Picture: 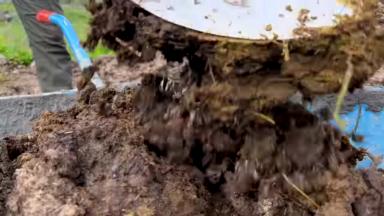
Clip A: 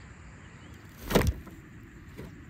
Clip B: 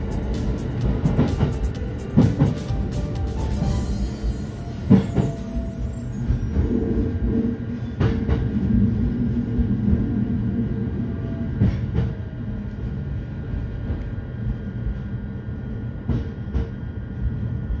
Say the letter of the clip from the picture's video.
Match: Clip A